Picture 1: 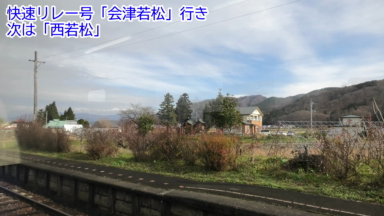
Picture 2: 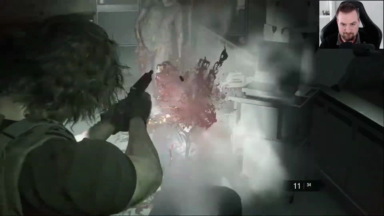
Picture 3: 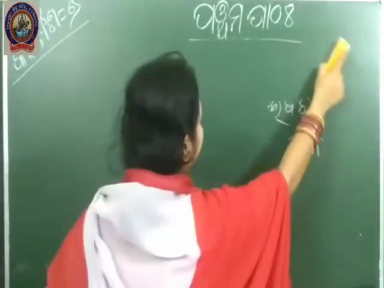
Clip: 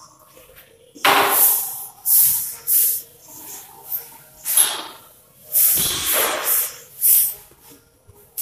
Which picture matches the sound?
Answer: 3